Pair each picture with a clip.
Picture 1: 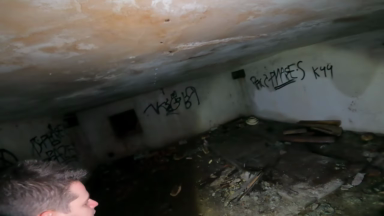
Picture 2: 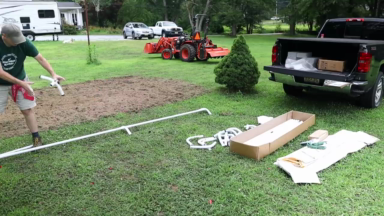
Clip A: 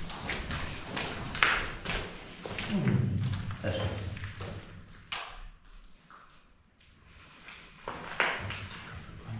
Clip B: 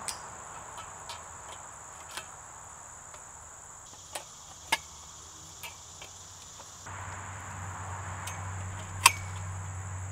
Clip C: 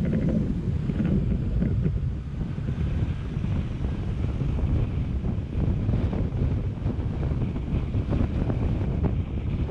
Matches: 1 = A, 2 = B